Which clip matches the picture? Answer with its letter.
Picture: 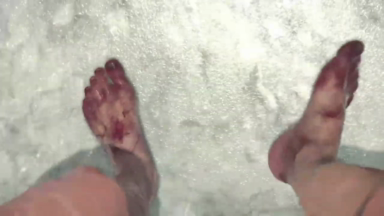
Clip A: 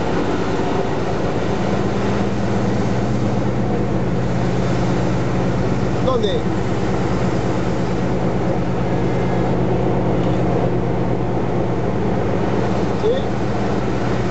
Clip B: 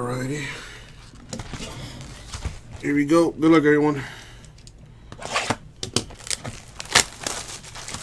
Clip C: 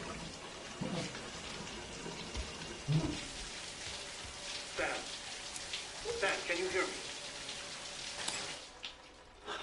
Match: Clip C